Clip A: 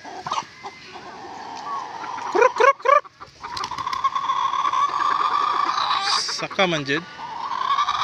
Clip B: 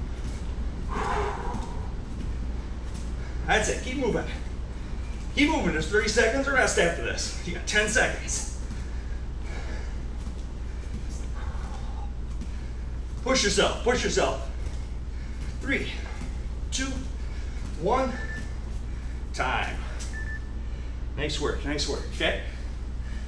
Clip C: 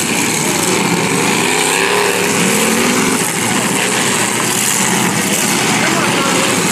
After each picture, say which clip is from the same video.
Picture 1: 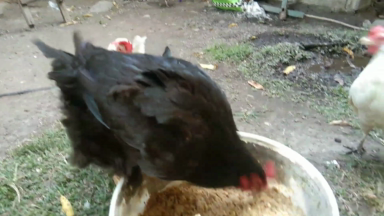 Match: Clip A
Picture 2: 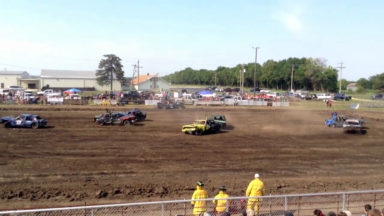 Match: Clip C